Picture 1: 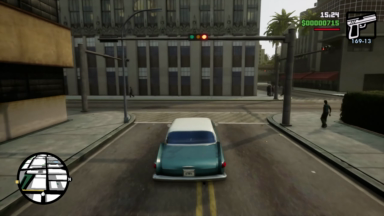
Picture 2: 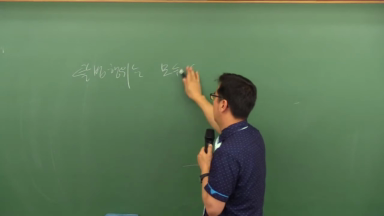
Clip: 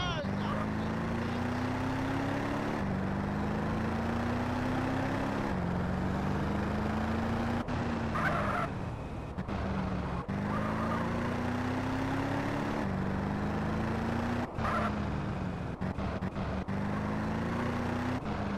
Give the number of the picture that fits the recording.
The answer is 1